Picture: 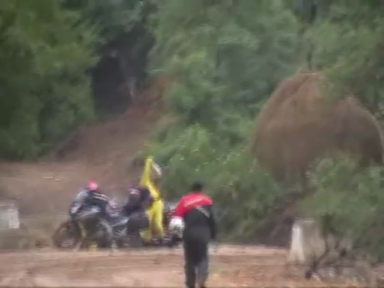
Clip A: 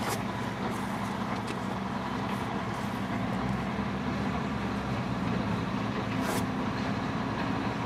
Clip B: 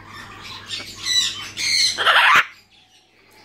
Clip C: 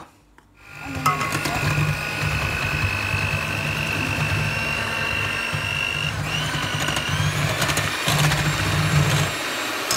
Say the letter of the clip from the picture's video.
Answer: A